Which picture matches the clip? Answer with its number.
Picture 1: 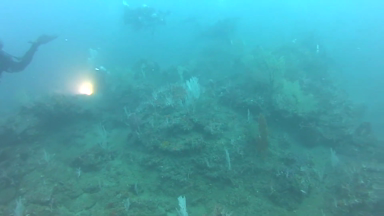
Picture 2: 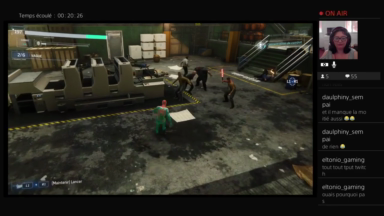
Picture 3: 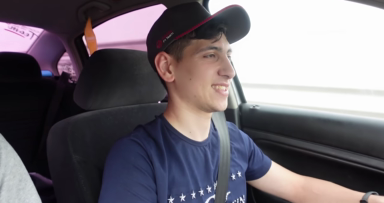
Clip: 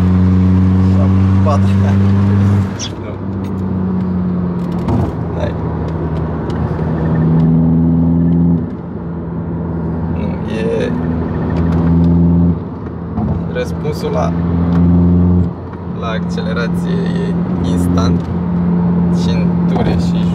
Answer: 3